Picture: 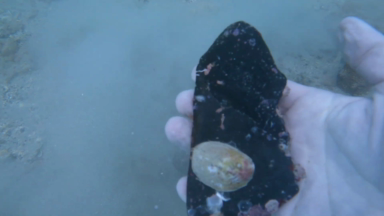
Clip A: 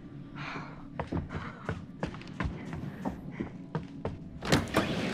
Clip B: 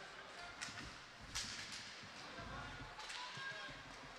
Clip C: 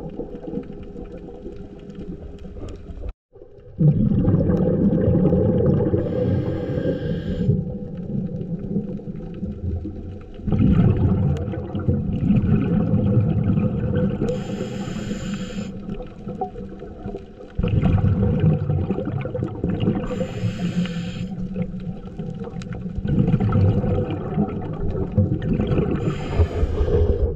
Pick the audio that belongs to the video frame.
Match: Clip C